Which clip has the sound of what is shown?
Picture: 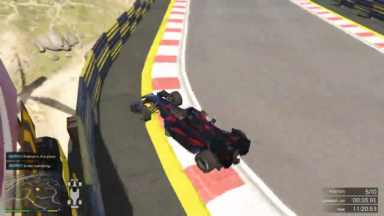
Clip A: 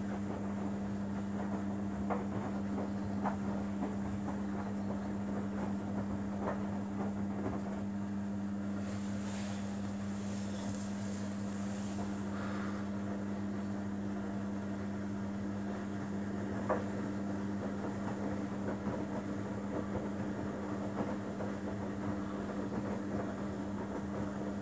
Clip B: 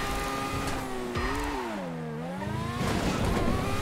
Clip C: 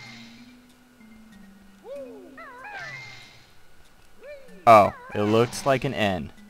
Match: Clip B